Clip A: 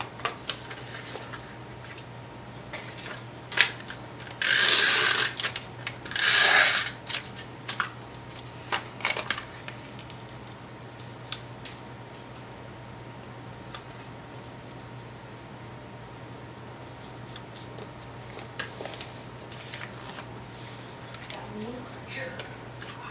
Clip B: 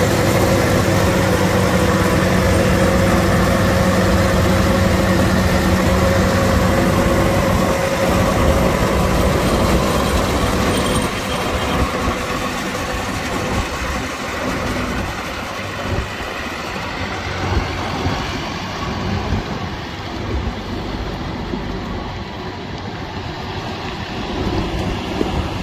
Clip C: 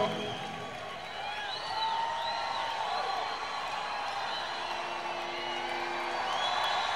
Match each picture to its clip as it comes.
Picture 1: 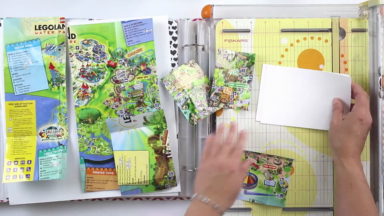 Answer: A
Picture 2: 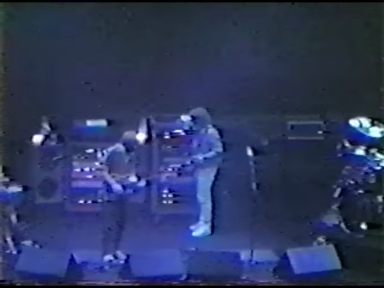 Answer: C